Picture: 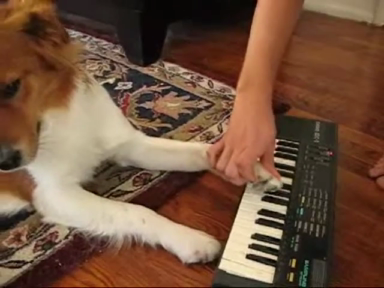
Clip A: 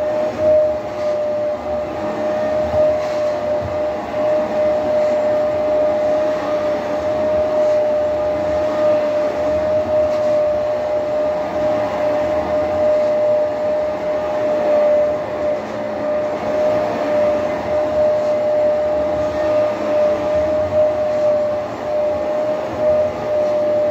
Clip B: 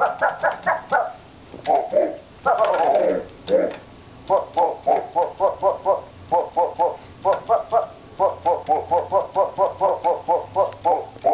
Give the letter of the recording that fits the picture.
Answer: B